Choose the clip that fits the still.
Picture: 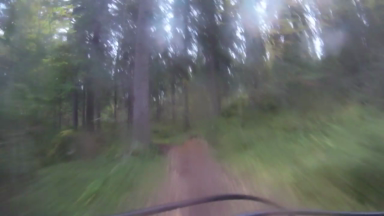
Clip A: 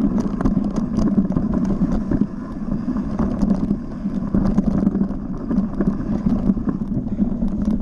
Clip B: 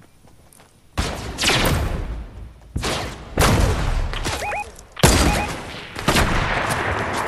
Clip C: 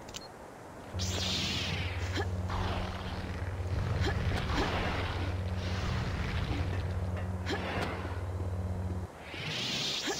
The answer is A